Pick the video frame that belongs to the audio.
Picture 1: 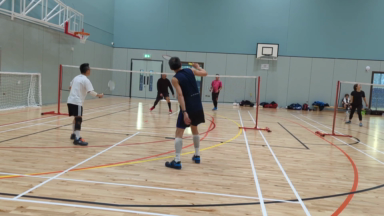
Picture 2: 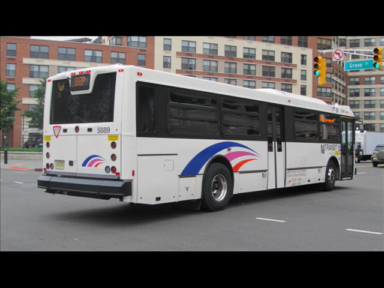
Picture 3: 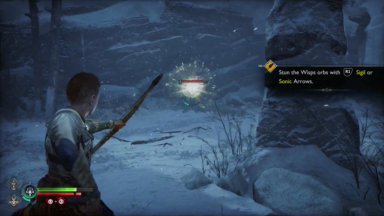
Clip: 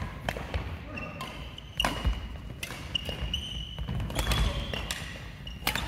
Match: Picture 1